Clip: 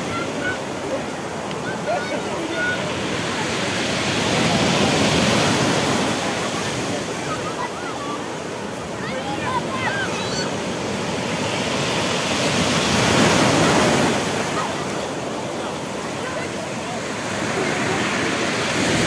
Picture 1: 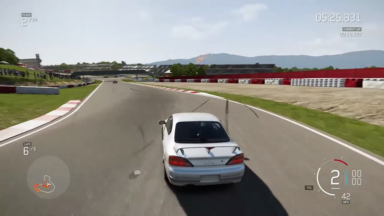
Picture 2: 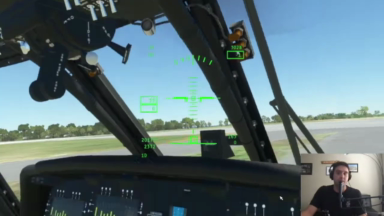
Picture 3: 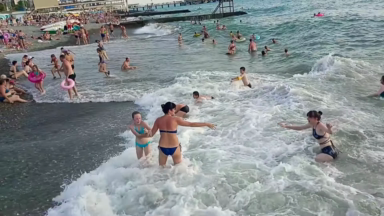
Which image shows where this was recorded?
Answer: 3